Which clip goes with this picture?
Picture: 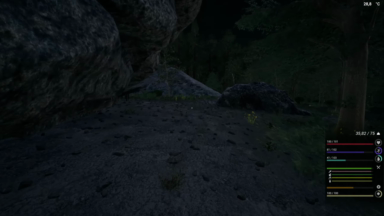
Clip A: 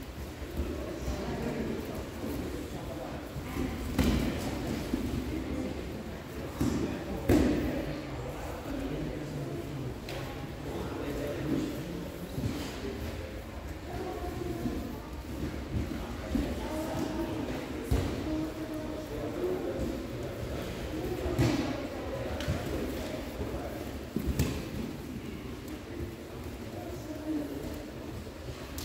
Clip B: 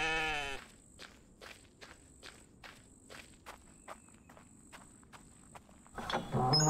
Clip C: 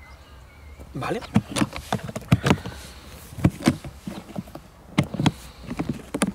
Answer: B